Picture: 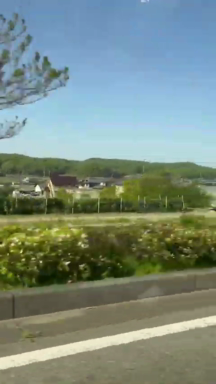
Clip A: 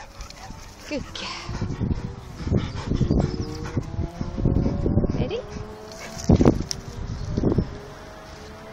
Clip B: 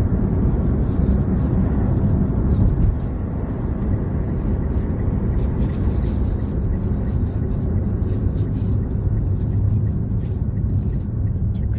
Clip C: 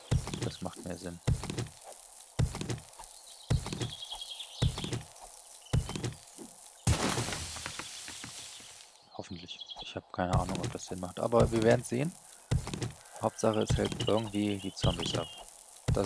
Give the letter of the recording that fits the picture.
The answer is B